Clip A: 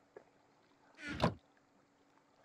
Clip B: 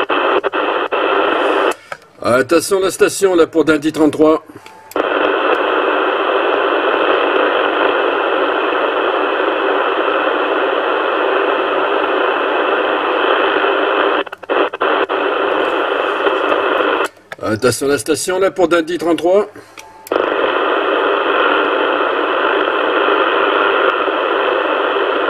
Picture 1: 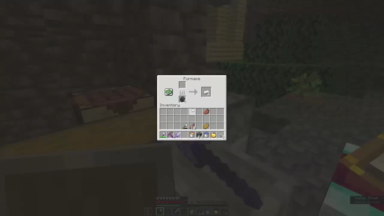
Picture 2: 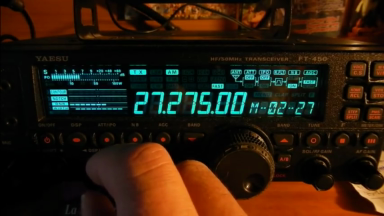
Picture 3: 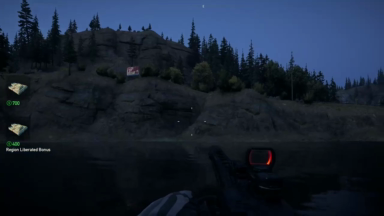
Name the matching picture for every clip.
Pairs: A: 1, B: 2